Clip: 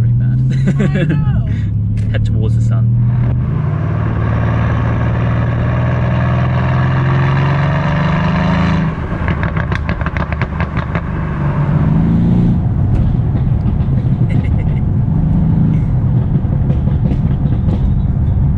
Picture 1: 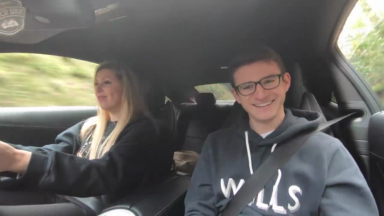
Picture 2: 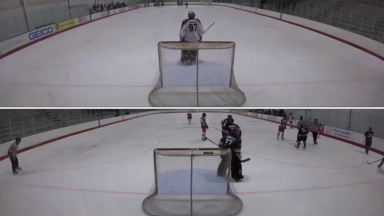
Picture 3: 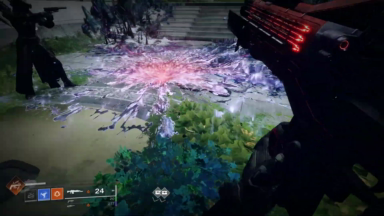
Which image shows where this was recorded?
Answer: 1